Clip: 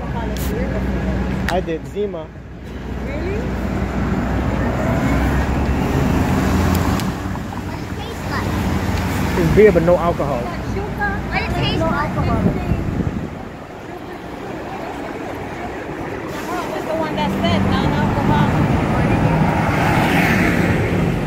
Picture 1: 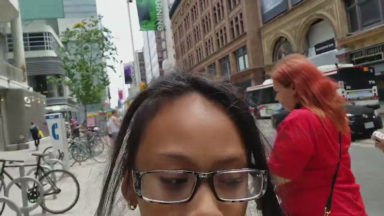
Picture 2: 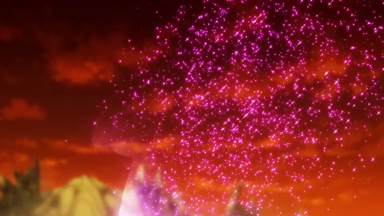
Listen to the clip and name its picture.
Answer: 1